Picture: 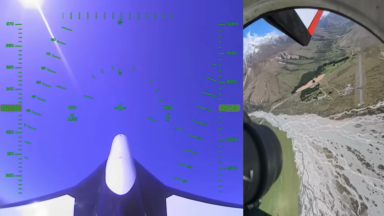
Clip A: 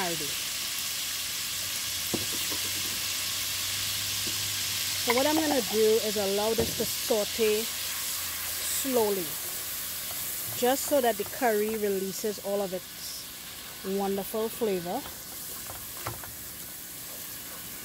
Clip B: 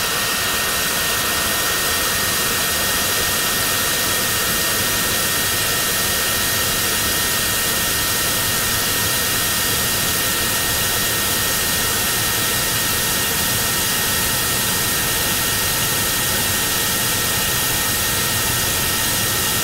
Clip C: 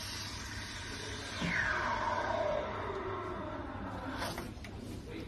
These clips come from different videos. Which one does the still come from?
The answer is B